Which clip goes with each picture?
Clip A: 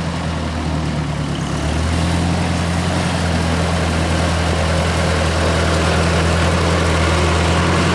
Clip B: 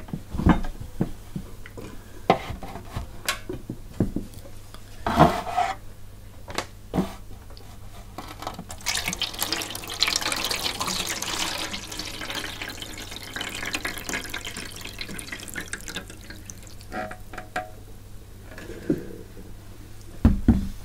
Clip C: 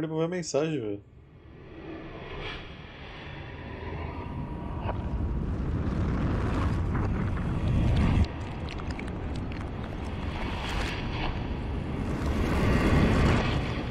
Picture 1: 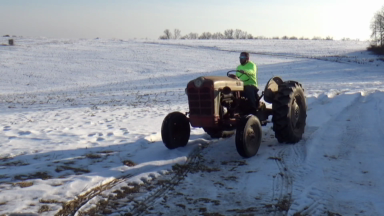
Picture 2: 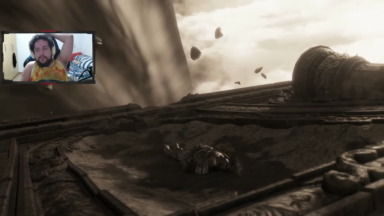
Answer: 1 A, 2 C